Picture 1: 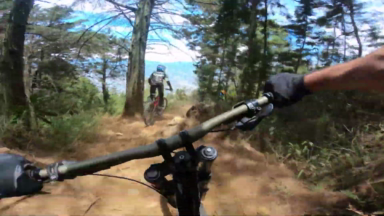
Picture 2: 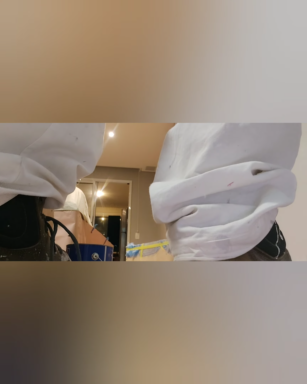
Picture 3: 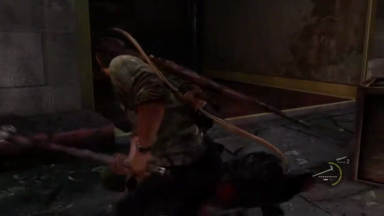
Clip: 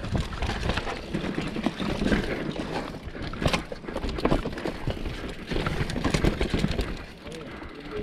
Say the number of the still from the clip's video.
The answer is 1